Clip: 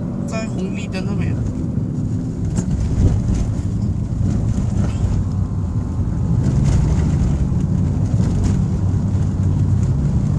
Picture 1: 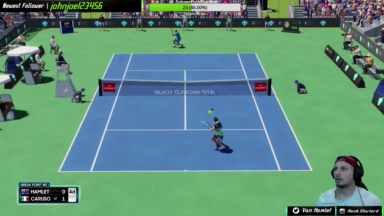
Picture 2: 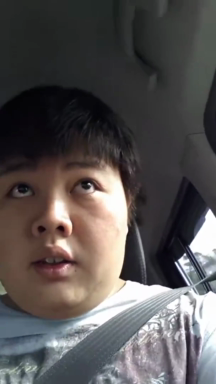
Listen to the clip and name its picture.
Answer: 2